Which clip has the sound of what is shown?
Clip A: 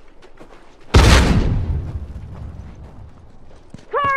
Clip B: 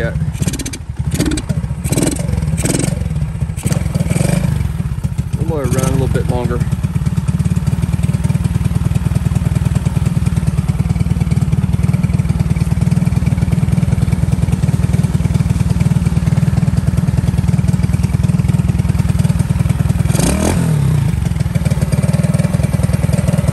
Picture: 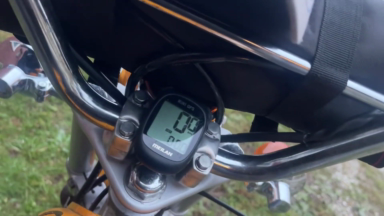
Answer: B